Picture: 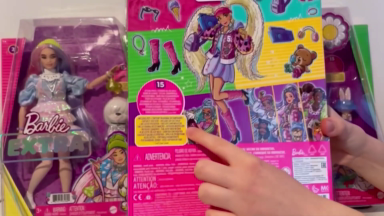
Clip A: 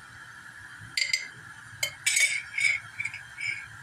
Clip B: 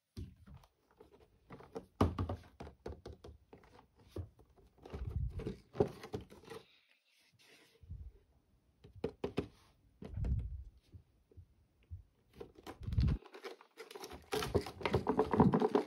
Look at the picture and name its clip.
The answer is B